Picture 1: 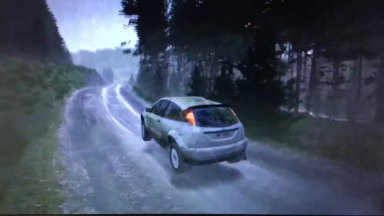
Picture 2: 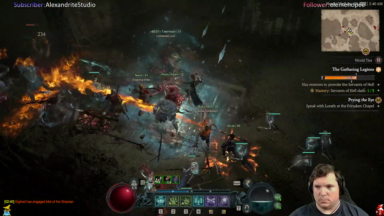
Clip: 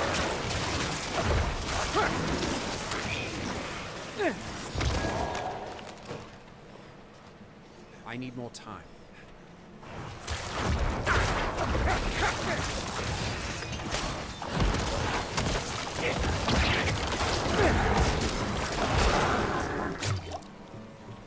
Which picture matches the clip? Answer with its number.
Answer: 2